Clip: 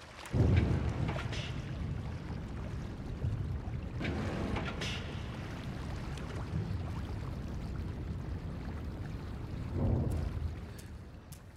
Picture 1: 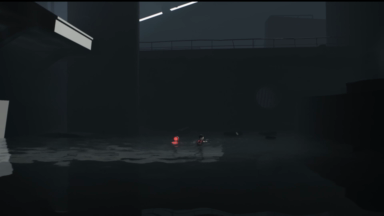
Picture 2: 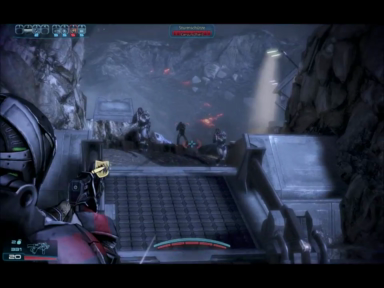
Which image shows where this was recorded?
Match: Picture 1